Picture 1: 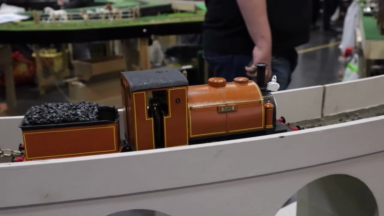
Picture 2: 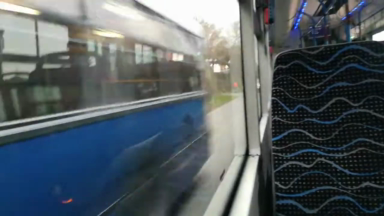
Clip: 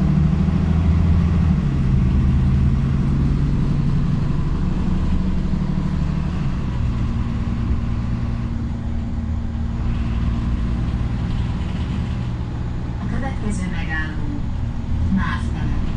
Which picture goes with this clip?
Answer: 2